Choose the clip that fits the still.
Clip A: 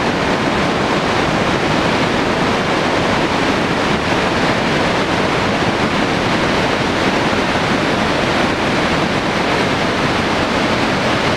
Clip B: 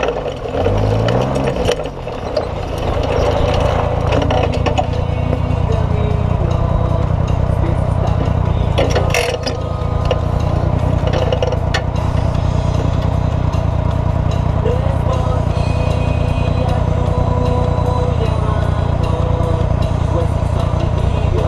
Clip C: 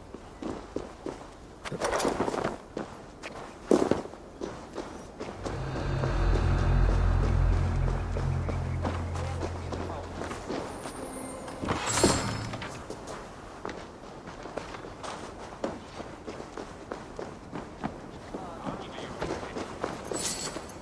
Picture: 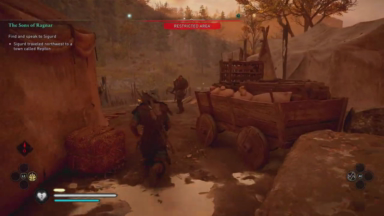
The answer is C